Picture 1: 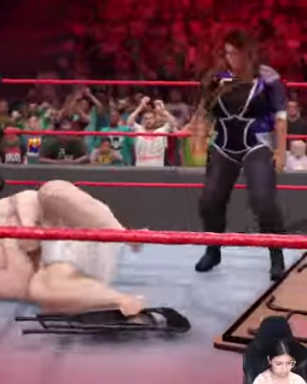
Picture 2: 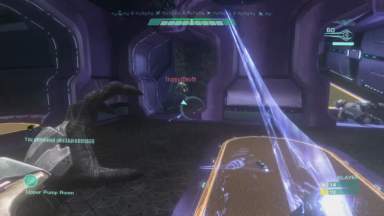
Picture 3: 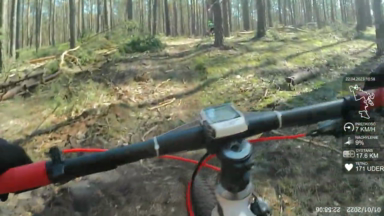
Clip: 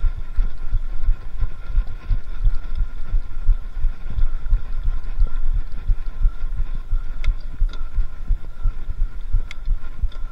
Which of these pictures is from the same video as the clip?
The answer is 3